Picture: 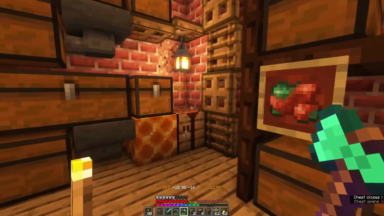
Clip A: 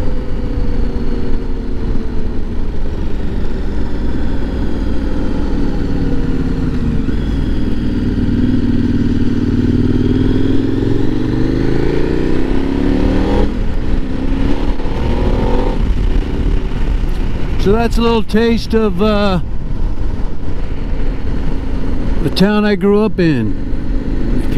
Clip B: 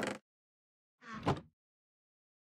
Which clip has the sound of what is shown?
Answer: B